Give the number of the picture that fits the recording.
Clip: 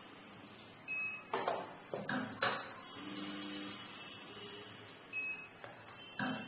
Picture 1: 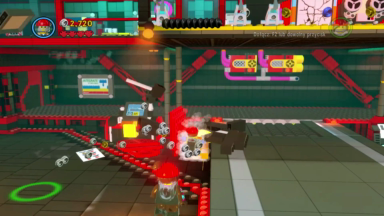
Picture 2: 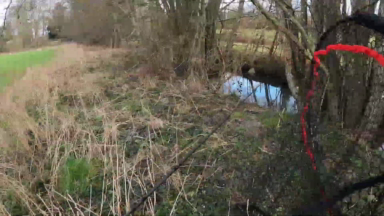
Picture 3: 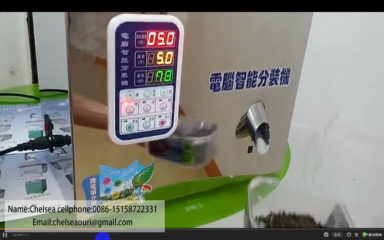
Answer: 3